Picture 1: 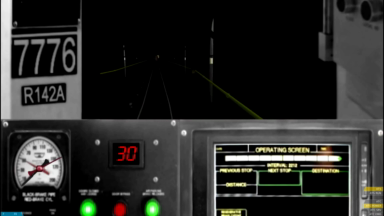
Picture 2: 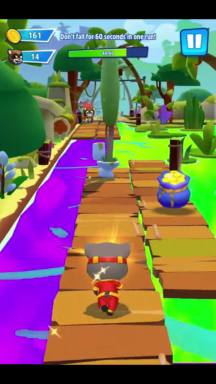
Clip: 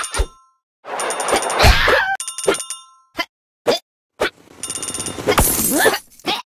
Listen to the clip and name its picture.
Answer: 2